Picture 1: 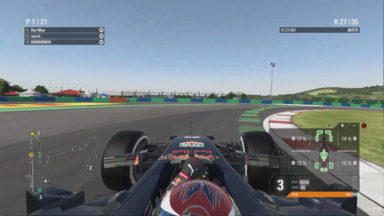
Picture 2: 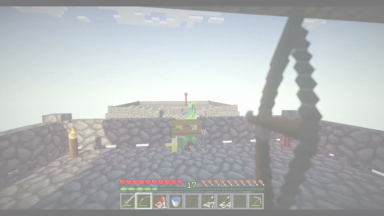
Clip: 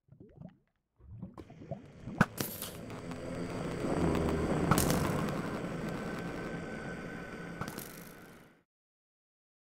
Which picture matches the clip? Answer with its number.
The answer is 2